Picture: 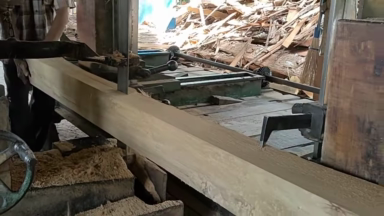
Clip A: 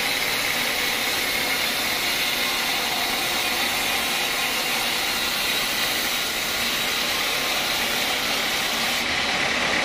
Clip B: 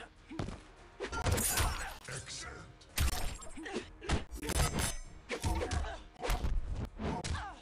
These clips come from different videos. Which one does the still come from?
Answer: A